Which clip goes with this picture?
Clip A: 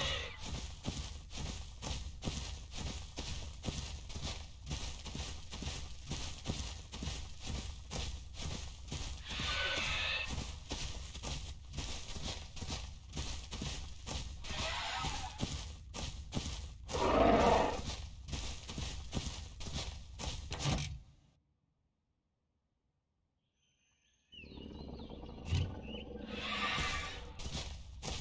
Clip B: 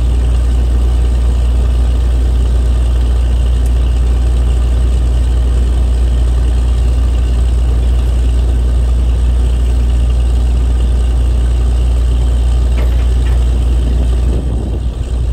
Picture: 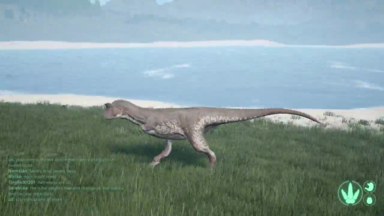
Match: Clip A